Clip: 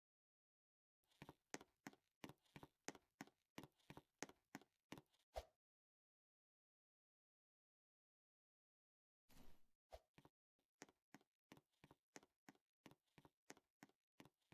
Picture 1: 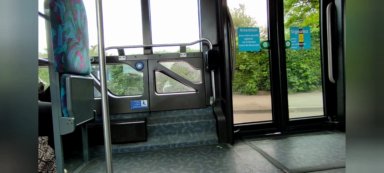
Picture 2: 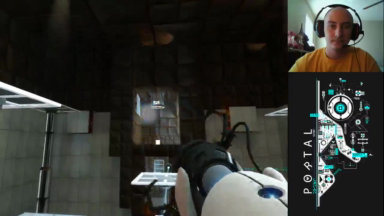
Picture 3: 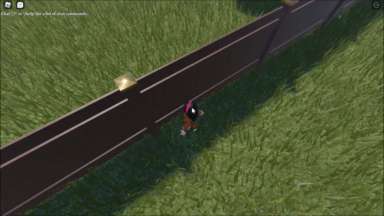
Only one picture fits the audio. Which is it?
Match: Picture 3